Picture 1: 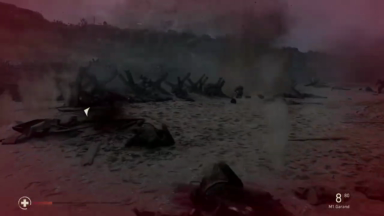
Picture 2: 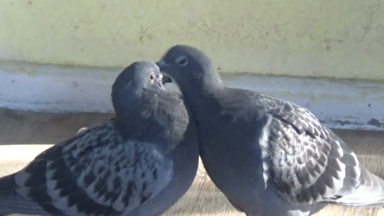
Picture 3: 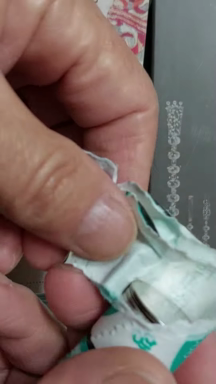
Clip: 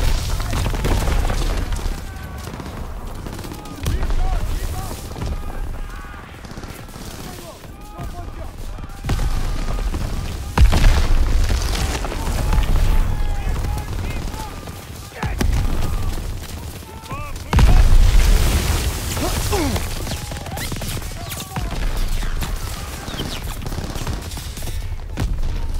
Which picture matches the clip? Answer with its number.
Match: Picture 1